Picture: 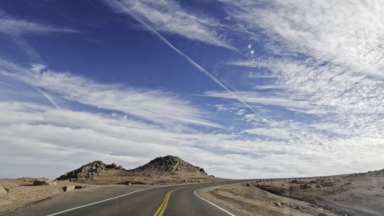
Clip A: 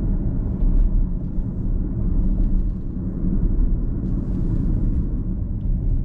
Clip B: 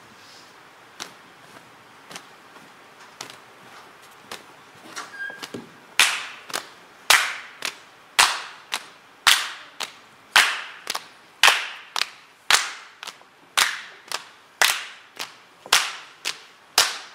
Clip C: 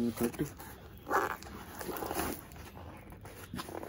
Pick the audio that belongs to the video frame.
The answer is A